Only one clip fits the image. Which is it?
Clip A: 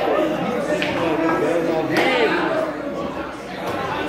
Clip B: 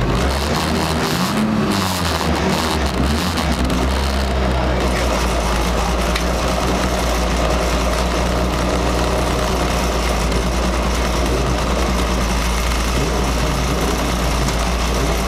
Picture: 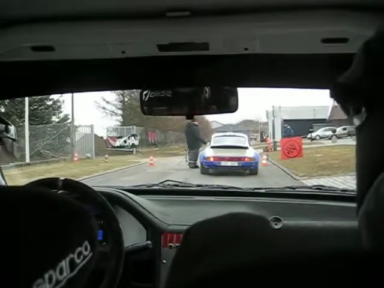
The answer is B